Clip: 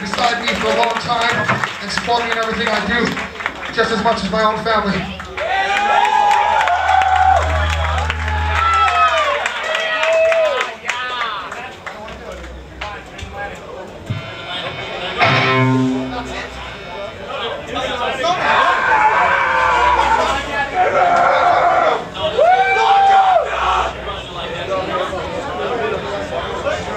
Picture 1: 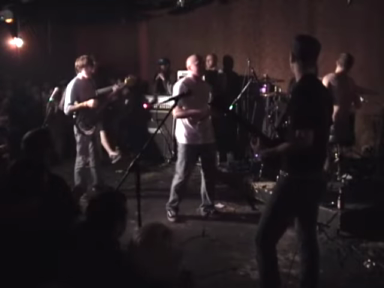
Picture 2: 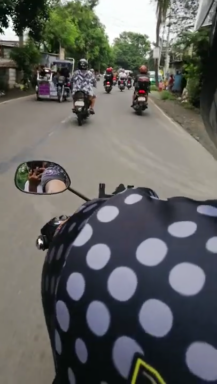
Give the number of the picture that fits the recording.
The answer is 1